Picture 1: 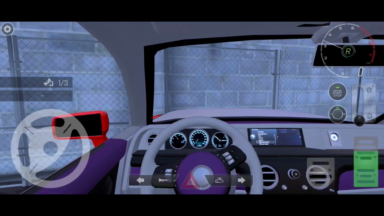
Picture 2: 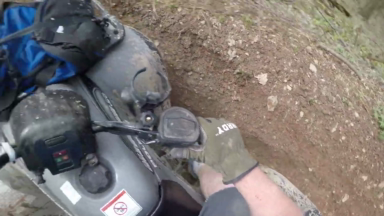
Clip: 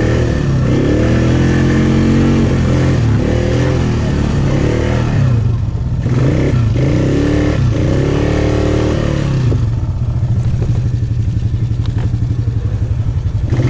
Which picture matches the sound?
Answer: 2